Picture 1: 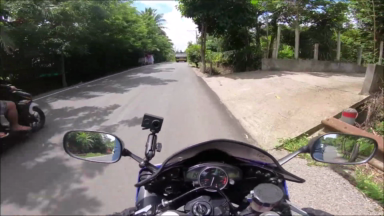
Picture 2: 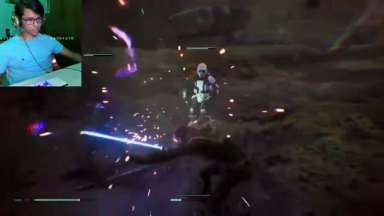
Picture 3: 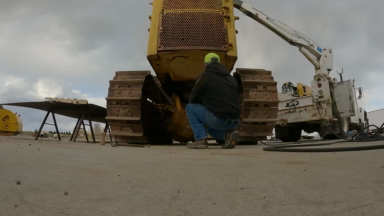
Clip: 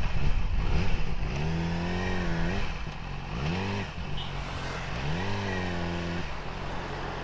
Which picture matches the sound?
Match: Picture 1